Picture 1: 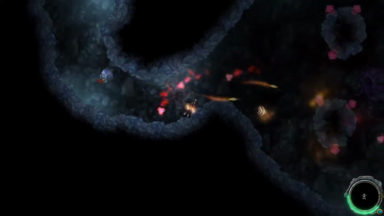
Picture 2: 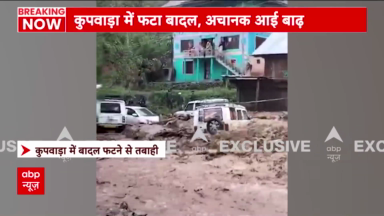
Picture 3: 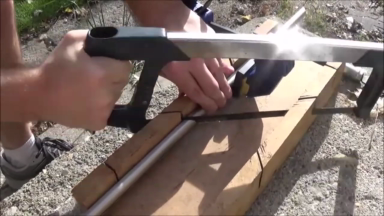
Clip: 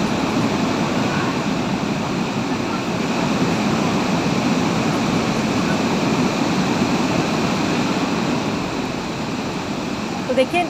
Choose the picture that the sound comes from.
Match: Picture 2